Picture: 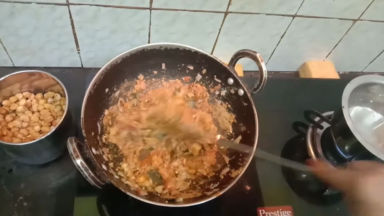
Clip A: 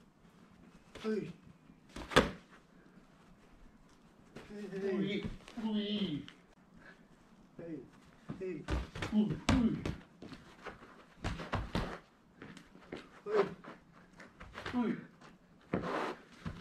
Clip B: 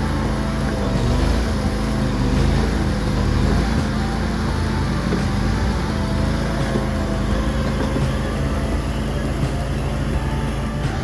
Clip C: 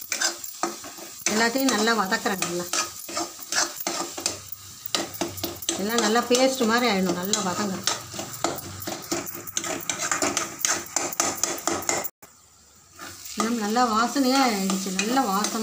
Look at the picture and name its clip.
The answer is C